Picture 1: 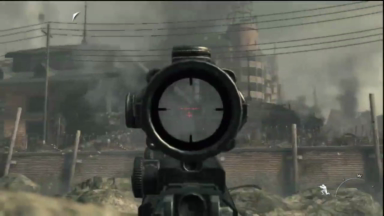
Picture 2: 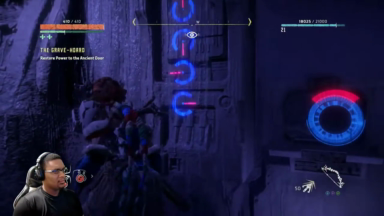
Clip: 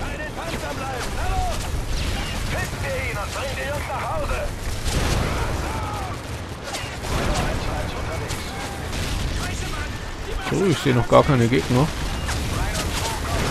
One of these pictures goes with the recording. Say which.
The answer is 1